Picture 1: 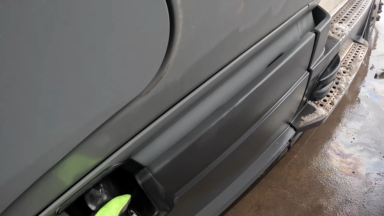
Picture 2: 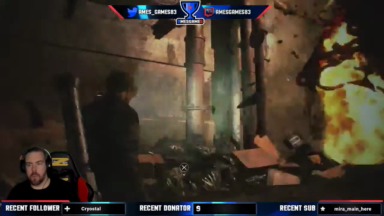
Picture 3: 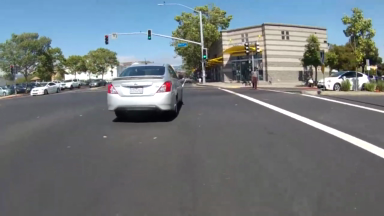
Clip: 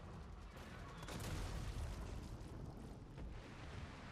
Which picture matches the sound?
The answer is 2